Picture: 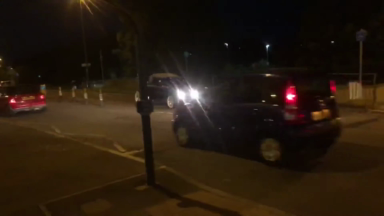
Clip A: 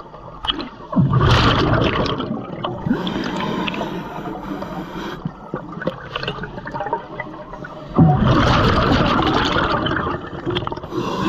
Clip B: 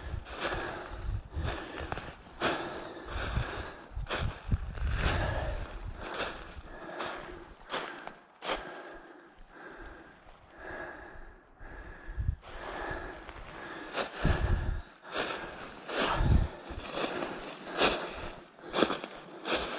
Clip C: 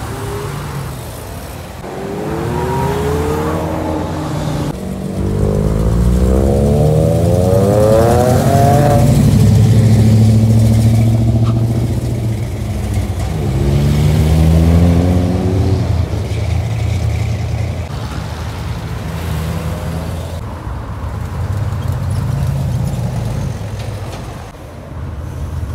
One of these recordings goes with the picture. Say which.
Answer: C